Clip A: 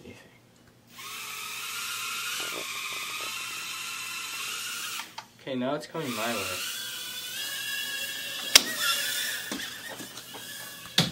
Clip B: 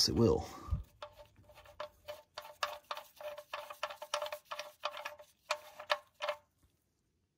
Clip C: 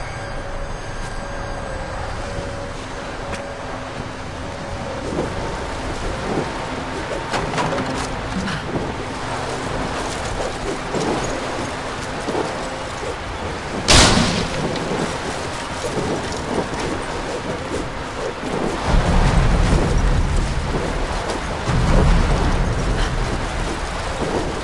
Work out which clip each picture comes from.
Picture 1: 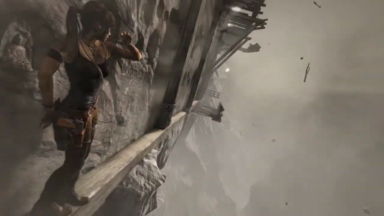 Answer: C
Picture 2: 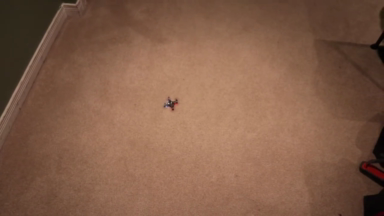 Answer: A